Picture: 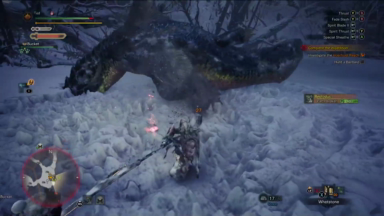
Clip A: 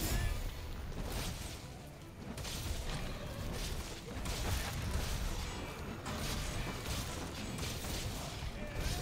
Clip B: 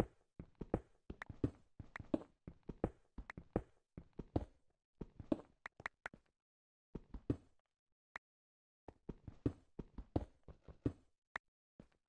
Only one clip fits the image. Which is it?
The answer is A